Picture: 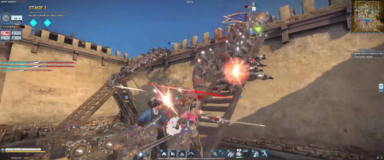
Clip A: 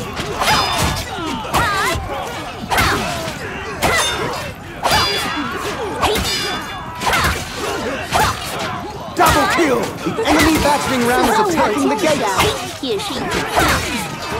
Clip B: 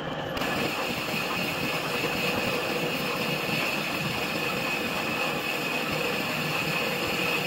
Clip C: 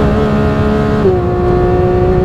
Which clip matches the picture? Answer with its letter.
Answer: A